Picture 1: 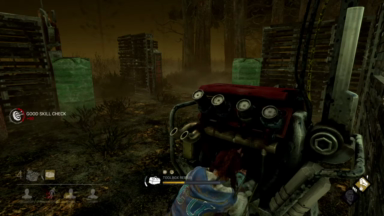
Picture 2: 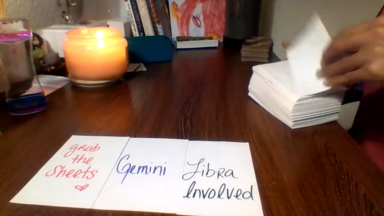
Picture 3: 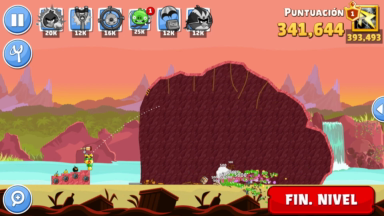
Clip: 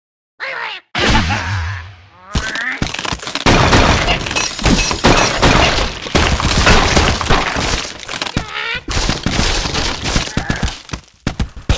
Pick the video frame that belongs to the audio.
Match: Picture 3